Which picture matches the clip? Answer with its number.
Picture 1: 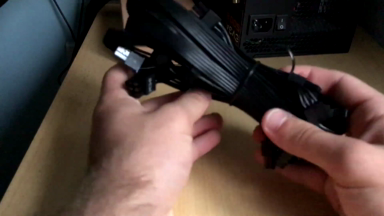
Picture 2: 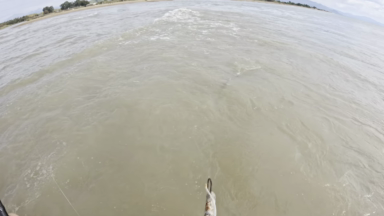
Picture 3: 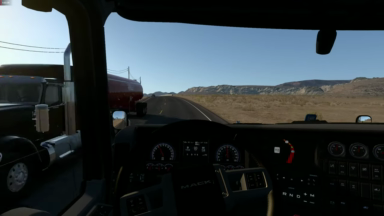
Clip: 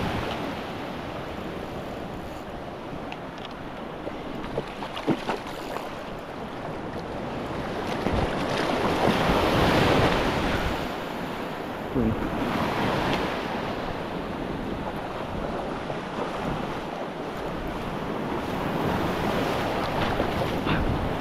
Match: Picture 2